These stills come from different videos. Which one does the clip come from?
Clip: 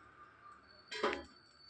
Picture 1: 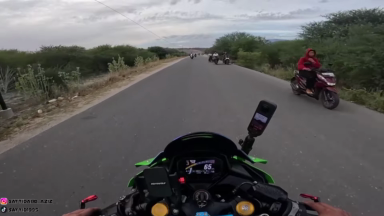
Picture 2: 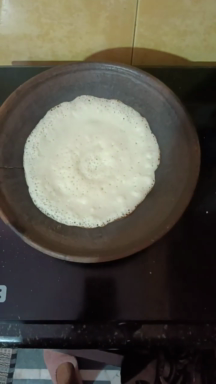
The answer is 2